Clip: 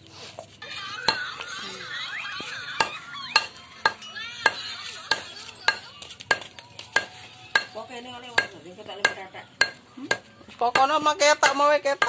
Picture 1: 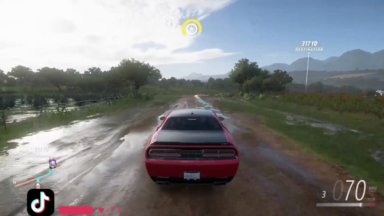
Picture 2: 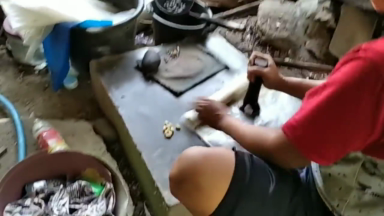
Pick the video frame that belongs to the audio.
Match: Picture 2